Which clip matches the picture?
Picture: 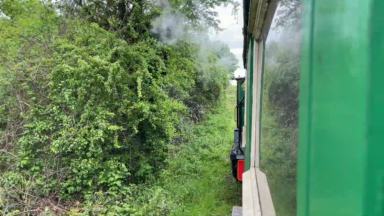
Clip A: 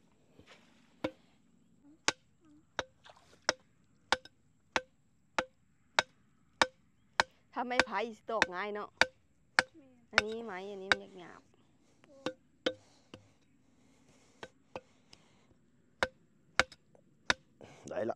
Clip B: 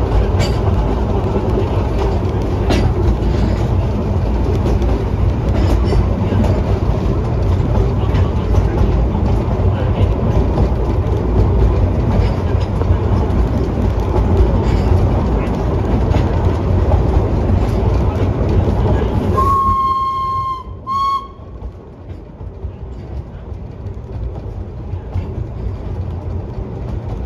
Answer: B